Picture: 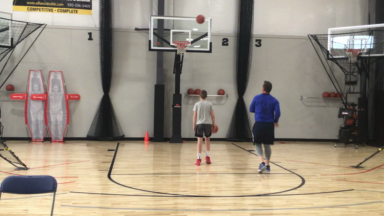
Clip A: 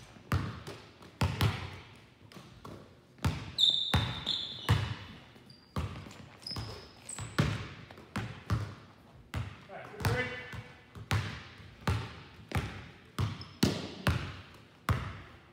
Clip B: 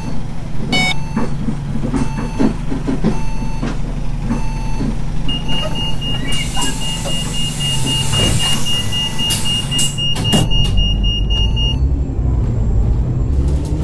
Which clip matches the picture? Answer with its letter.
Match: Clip A